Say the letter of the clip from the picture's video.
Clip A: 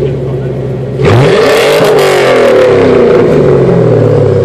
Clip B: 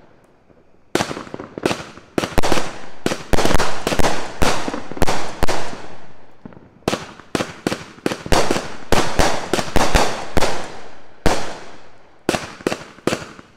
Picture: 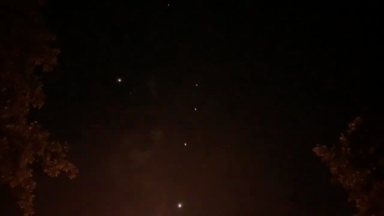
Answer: B